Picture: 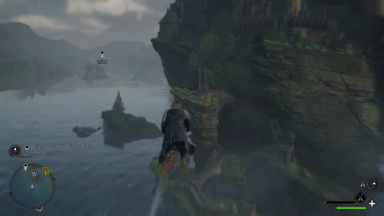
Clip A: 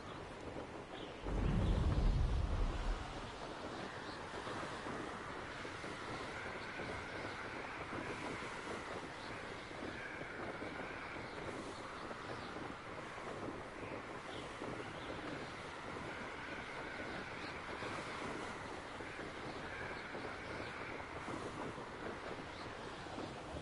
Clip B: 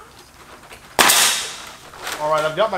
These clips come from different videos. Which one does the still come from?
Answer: A